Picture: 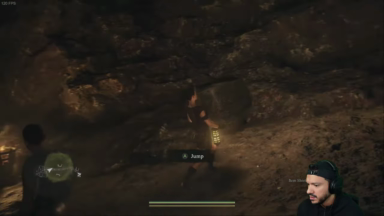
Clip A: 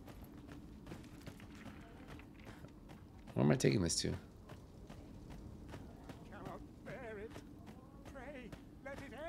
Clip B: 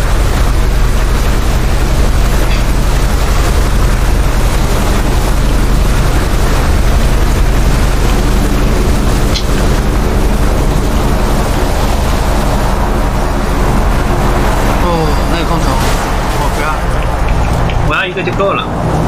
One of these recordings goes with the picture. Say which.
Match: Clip A